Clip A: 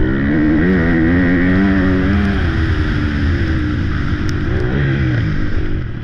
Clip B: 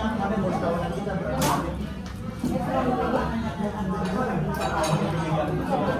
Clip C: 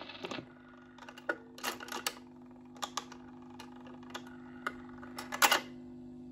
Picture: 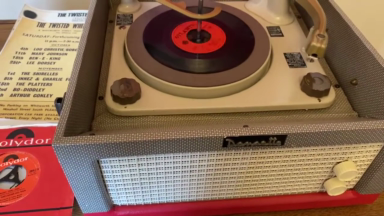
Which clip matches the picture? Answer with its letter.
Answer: C